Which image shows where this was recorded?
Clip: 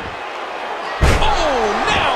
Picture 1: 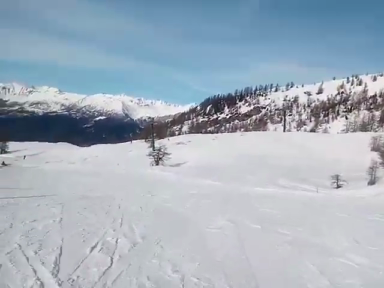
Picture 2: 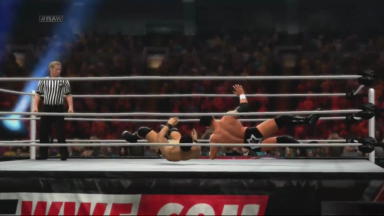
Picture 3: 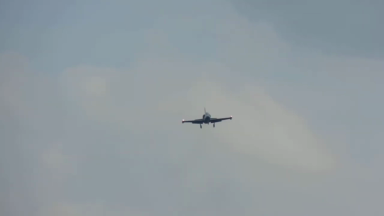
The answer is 2